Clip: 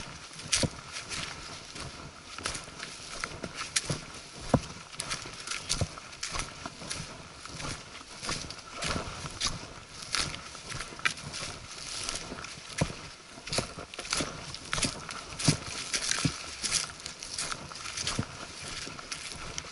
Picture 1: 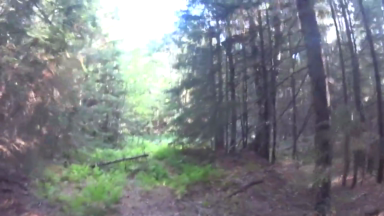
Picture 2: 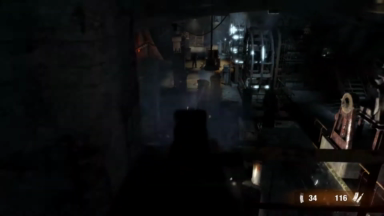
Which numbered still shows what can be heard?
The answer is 1